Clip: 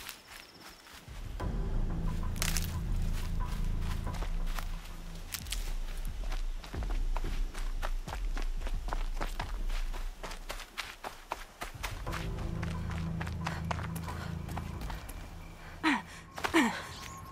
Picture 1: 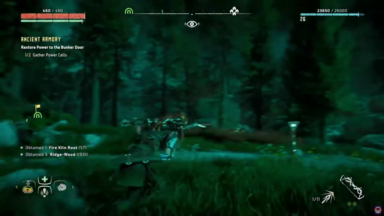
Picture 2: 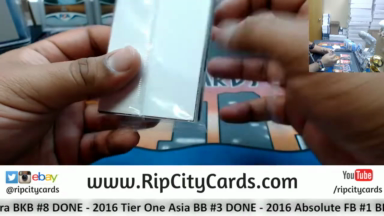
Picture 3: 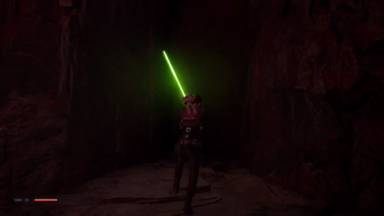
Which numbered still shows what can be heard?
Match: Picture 1